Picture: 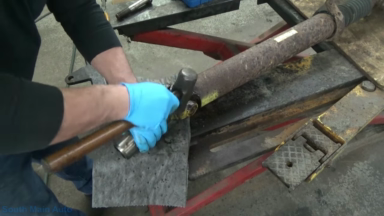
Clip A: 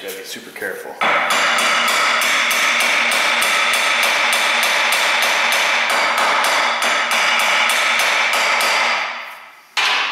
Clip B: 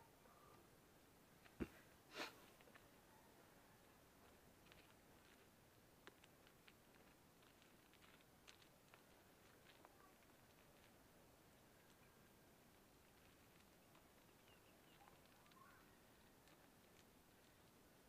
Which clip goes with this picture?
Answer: A